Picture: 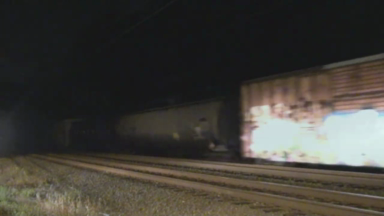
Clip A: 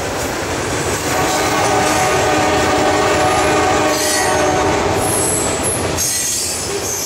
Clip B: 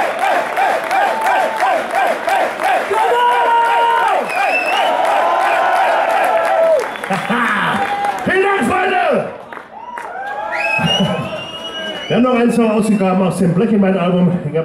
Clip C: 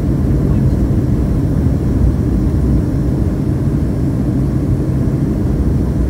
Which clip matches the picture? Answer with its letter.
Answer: A